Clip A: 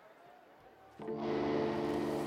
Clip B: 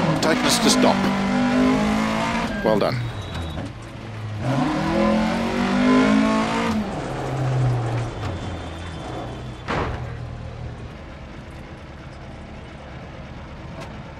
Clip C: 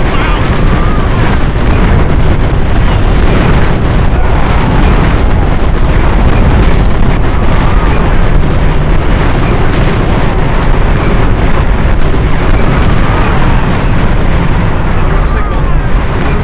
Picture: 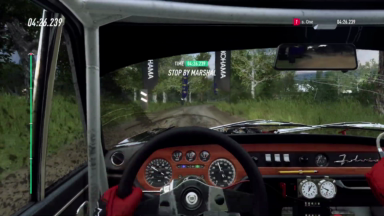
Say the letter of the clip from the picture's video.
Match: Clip B